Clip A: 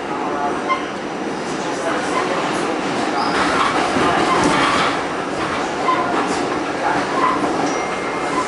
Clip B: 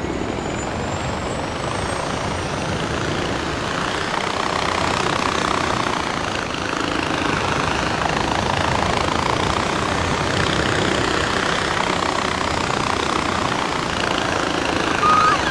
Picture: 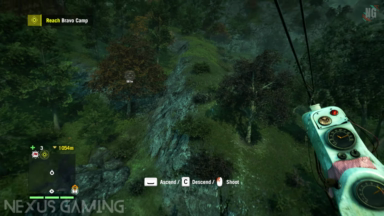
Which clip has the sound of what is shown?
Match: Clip B